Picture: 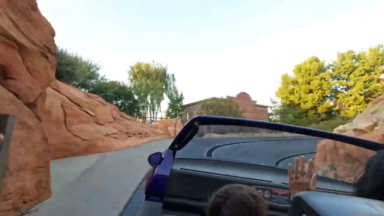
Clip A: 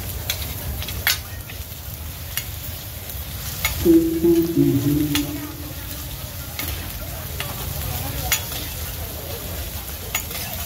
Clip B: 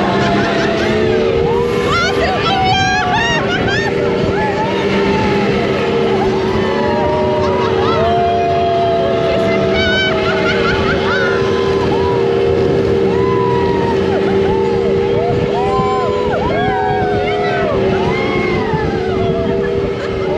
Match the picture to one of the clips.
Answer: B